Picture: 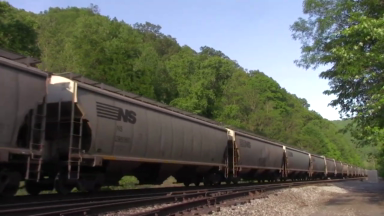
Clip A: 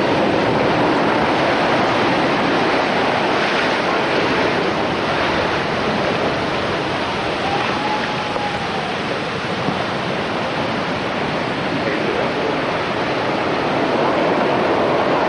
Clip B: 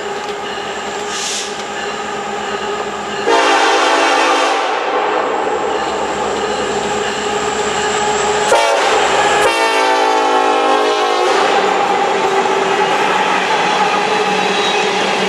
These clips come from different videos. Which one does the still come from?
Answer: B